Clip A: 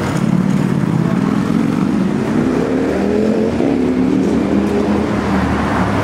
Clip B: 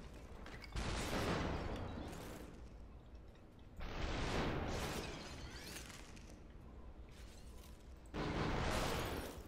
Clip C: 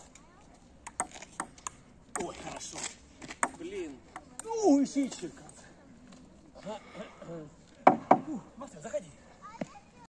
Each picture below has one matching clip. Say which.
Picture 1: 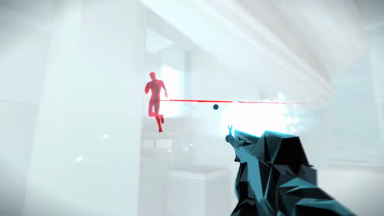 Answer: B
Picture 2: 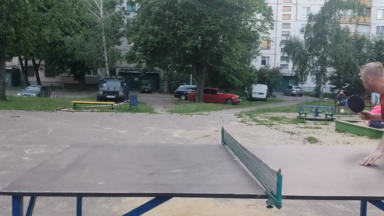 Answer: C